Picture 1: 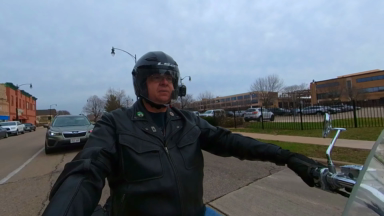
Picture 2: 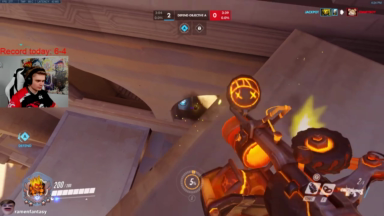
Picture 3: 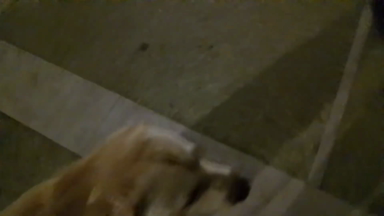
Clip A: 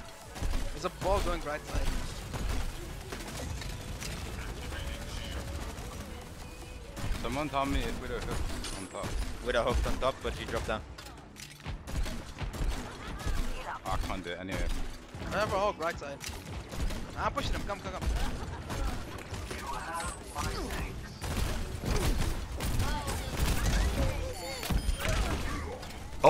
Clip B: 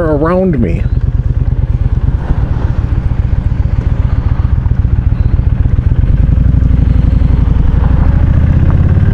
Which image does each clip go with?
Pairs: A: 2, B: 1